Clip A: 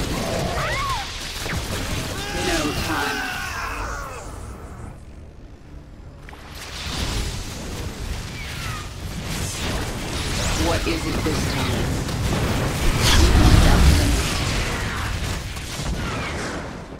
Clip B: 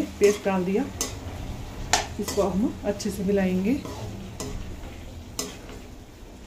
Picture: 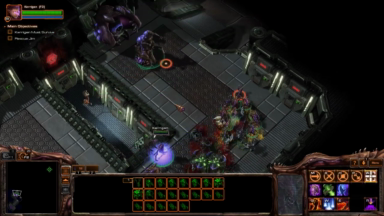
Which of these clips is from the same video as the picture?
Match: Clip A